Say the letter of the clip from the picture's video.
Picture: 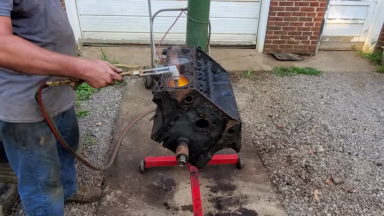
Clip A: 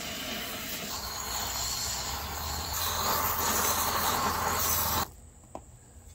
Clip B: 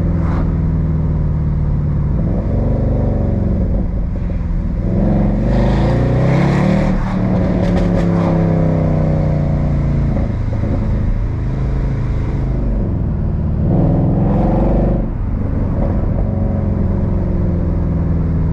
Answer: A